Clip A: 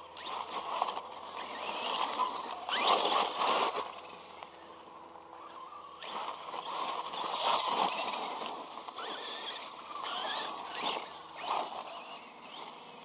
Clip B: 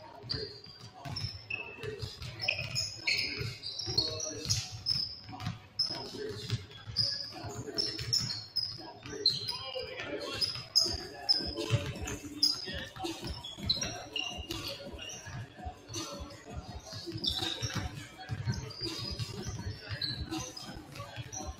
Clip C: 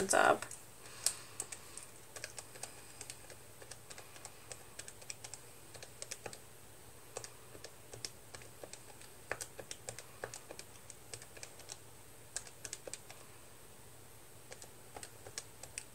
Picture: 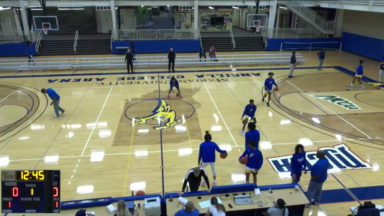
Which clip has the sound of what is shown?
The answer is B